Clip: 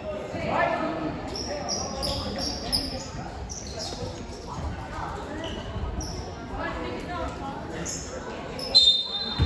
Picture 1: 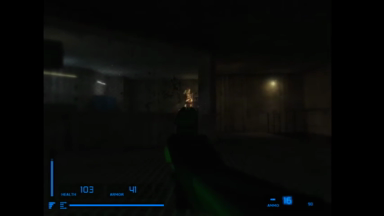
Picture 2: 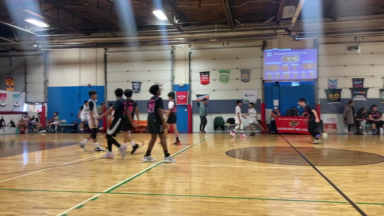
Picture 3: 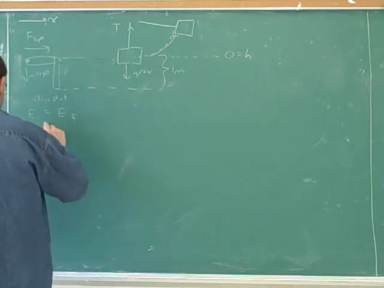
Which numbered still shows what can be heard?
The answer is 2